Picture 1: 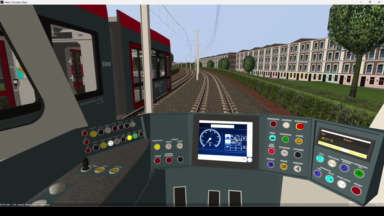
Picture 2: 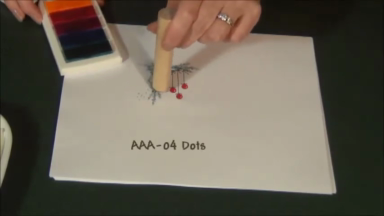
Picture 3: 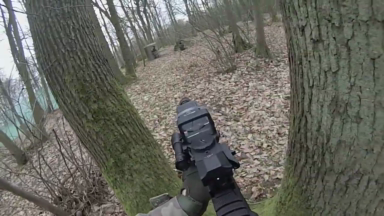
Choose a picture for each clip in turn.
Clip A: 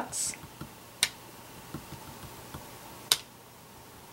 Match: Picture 2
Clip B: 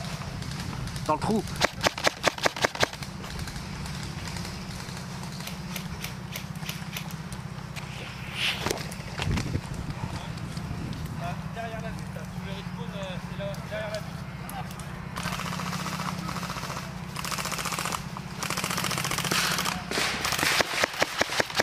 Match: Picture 3